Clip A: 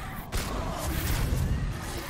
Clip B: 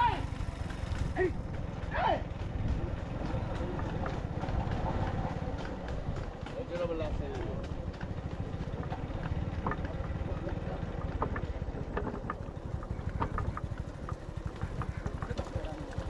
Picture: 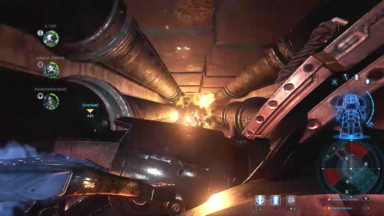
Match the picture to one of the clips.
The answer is A